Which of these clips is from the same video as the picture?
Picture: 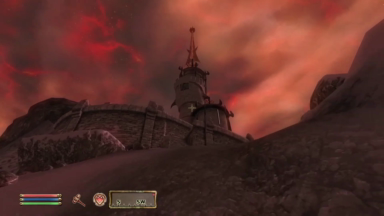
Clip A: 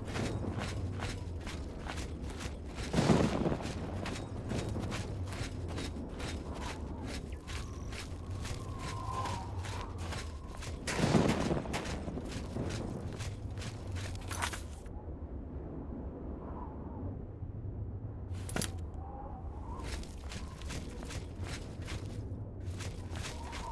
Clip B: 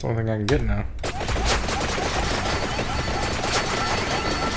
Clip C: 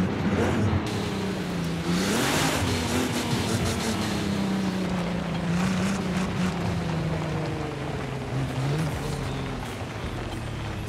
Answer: A